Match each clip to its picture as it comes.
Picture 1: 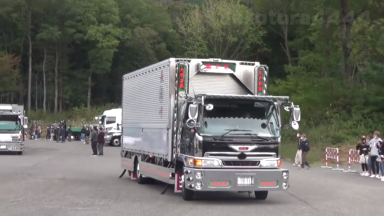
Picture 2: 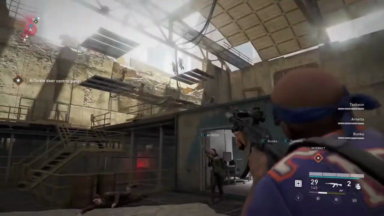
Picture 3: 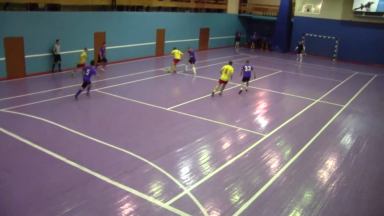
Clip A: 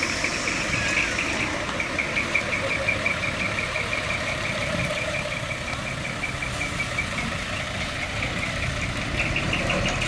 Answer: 1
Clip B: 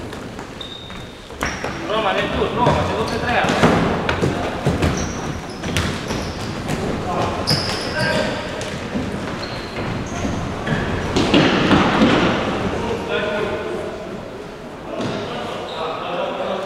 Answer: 3